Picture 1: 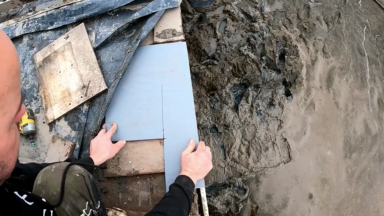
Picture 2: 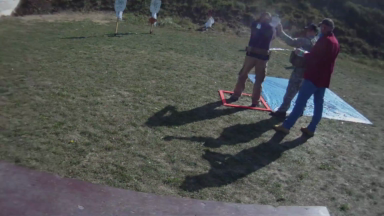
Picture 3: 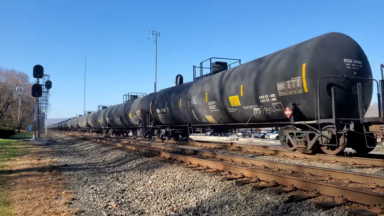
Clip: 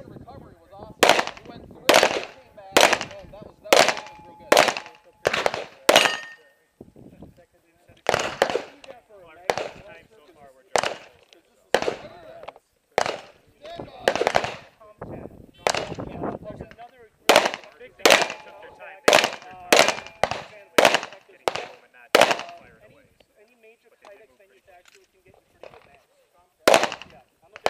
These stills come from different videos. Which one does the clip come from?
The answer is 2